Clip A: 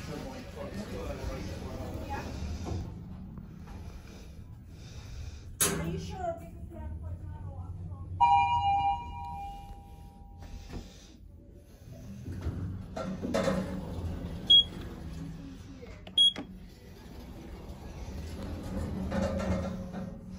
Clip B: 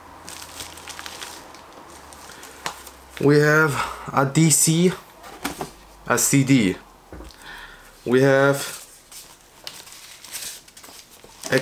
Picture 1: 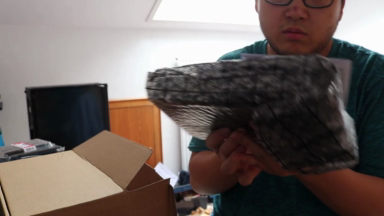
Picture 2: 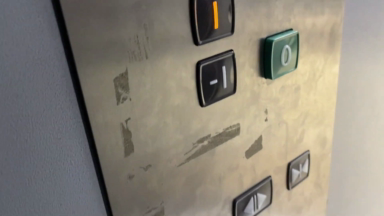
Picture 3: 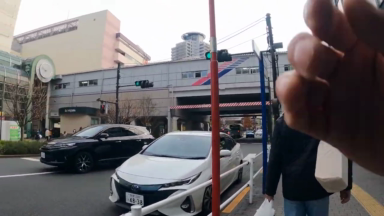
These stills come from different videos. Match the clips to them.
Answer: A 2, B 1